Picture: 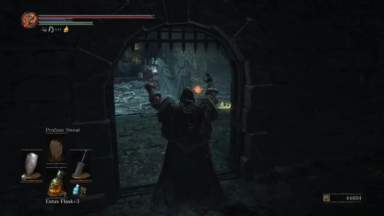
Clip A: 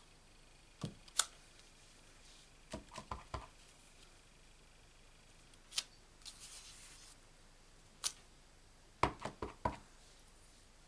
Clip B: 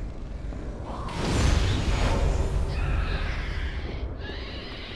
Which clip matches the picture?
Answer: B